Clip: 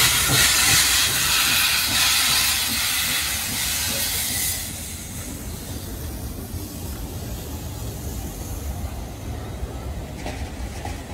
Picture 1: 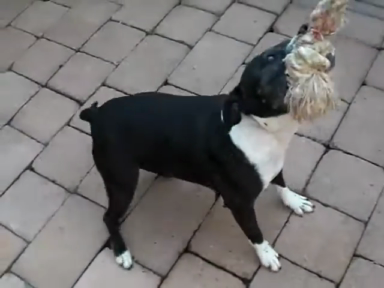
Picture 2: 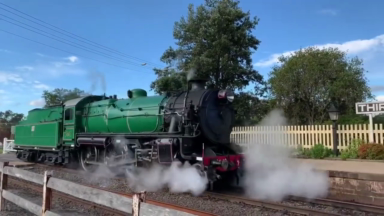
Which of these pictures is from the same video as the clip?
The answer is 2